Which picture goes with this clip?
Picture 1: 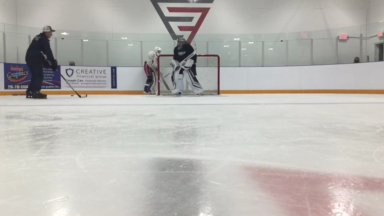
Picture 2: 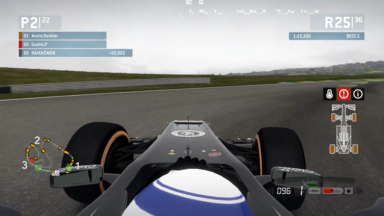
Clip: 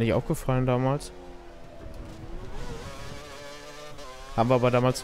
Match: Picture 2